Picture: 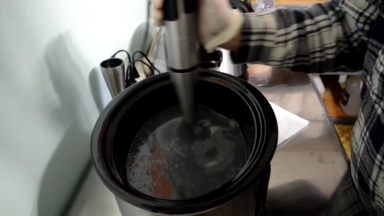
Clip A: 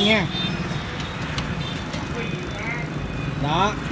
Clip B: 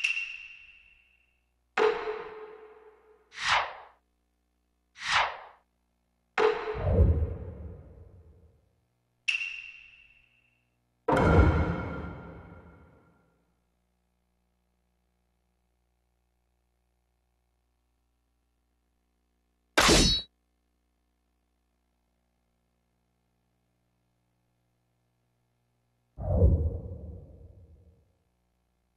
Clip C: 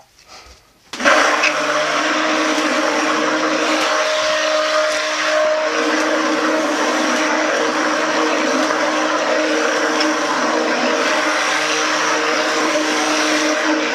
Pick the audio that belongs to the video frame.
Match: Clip C